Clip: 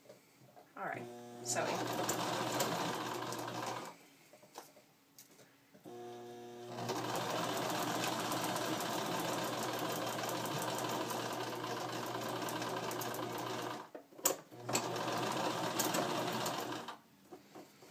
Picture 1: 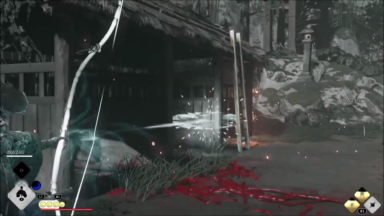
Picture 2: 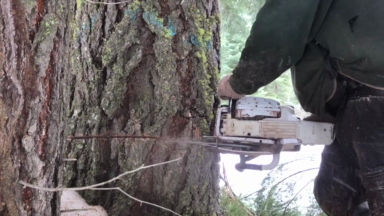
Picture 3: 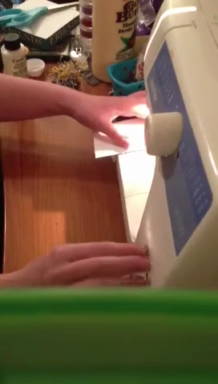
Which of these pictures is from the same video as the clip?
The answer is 3